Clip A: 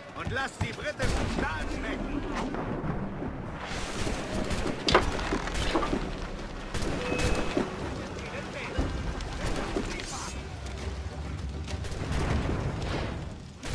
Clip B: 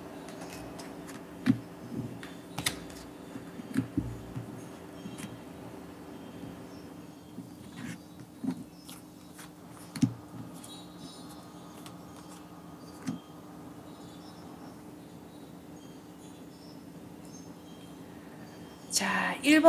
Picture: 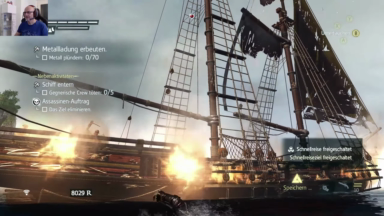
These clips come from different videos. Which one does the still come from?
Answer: A